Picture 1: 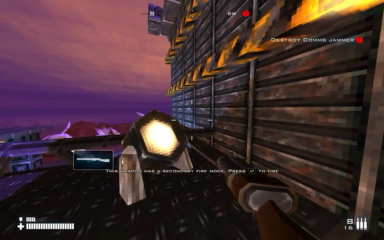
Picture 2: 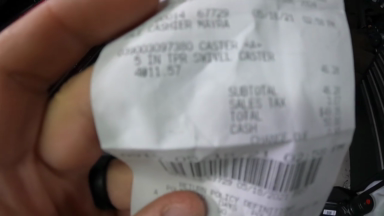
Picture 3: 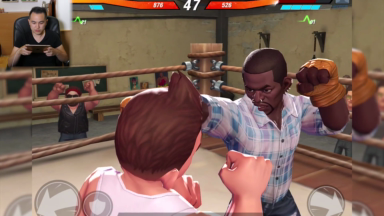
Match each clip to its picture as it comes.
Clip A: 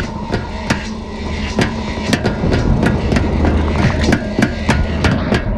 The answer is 1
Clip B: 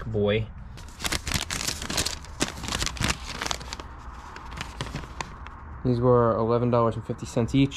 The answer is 2